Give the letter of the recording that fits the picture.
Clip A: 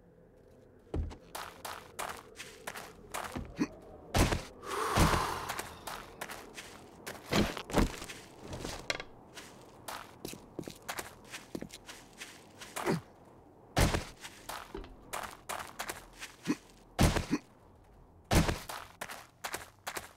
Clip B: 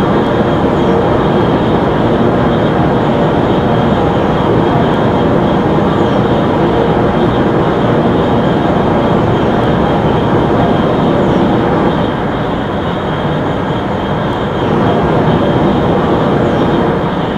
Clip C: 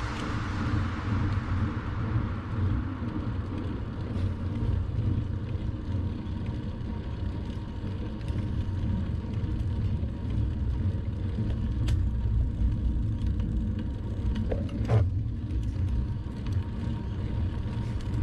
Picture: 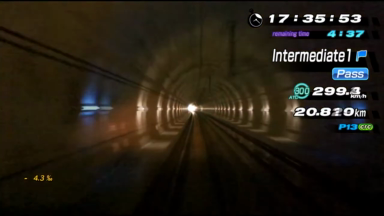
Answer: B